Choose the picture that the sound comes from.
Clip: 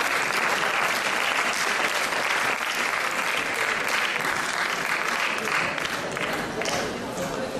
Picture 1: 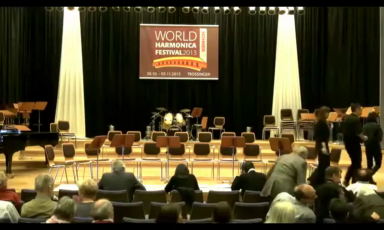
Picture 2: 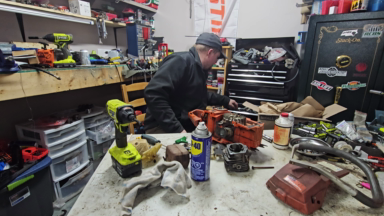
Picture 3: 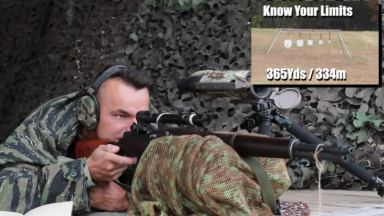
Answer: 1